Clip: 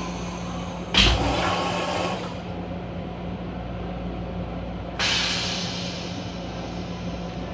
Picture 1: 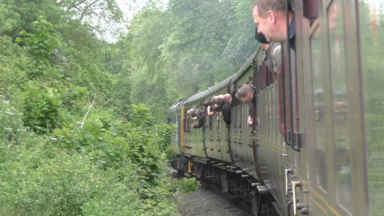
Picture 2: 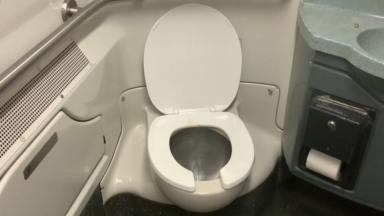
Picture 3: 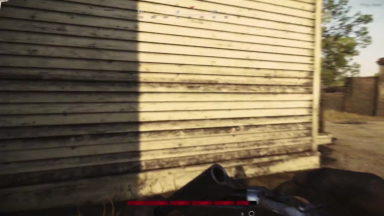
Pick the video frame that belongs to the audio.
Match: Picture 2